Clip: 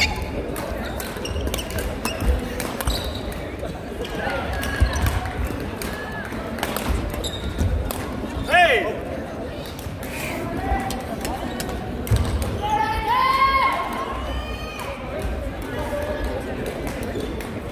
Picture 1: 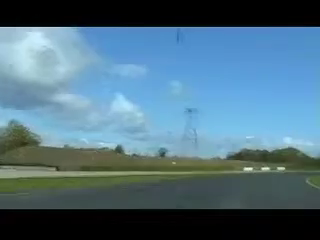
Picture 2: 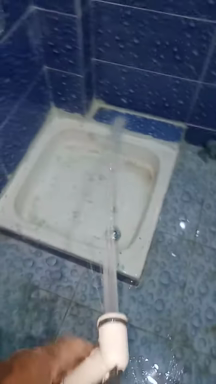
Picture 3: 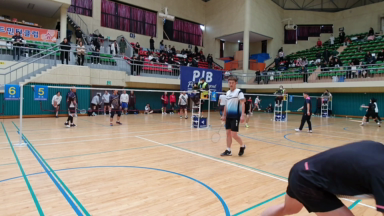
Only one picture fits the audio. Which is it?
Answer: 3